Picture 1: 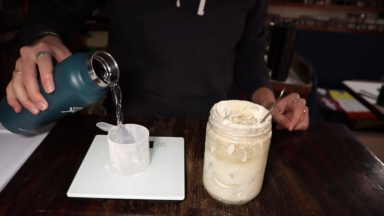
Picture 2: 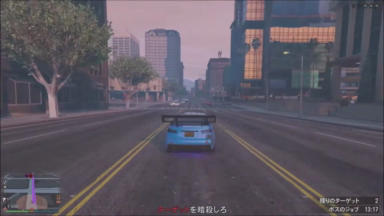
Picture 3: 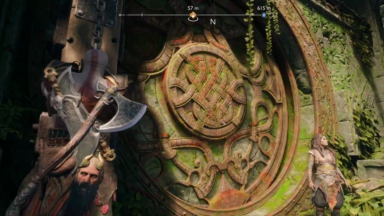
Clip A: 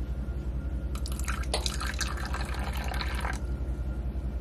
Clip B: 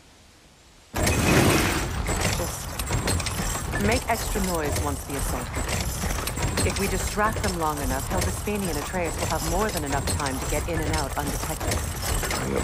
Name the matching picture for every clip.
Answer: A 1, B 3